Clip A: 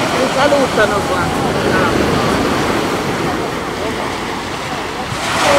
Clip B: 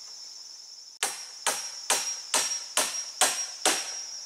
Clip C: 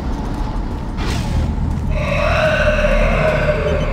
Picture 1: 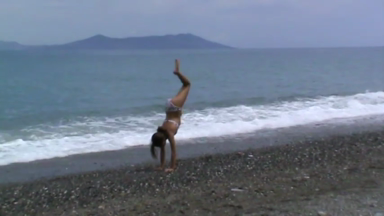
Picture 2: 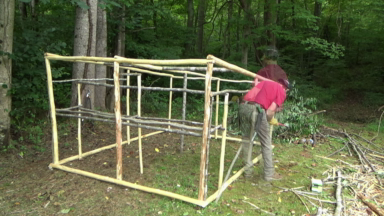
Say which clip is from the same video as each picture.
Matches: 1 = A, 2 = B